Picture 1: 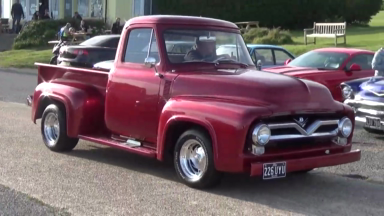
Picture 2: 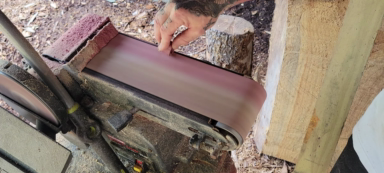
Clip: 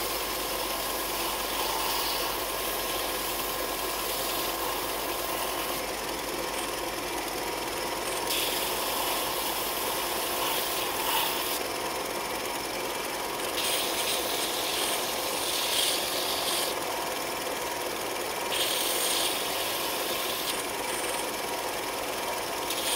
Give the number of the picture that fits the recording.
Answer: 2